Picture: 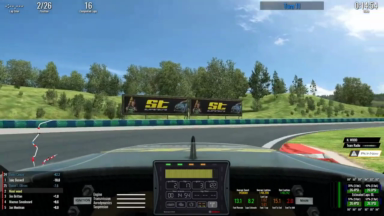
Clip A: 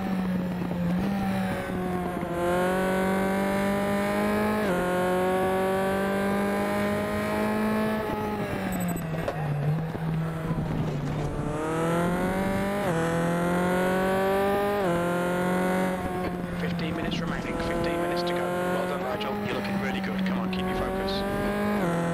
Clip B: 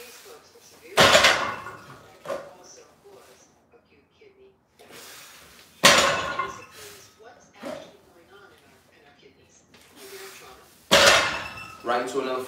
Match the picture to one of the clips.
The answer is A